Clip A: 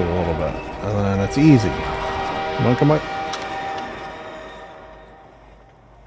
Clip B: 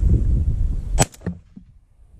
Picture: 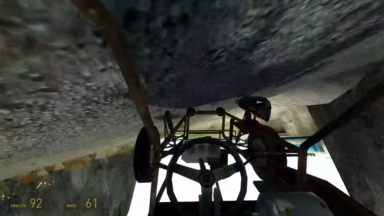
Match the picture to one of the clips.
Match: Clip A